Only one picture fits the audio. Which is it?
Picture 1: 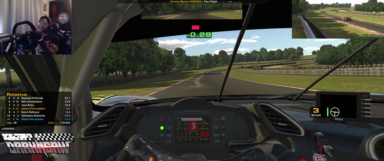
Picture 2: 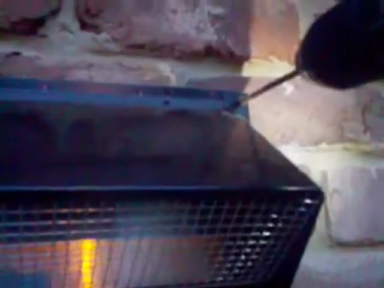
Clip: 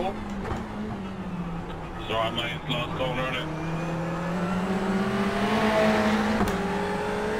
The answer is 1